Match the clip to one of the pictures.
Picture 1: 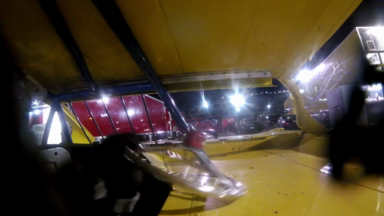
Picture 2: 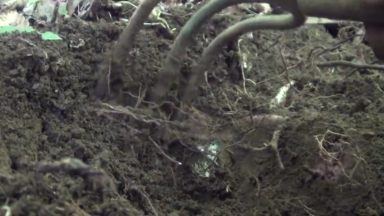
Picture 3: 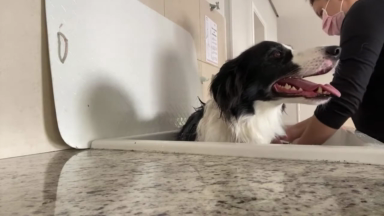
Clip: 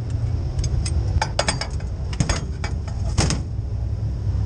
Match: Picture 1